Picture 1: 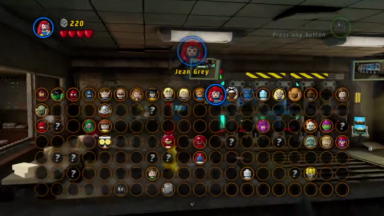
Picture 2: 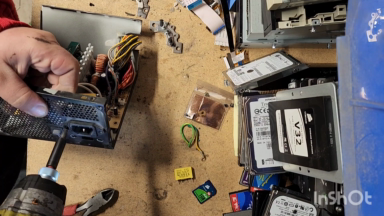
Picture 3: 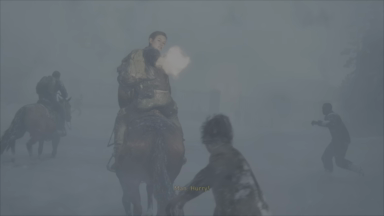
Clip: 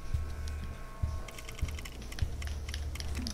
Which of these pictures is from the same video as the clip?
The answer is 1